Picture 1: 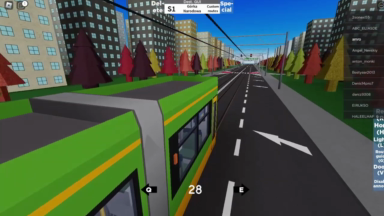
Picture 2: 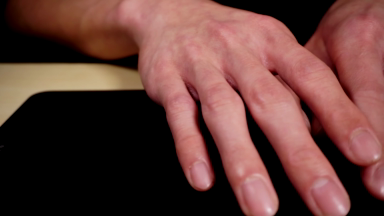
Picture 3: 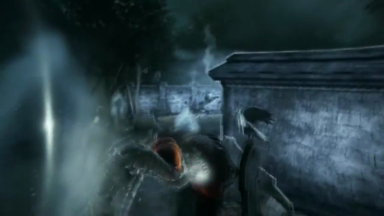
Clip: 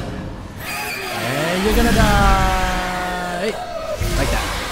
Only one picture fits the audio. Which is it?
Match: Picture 3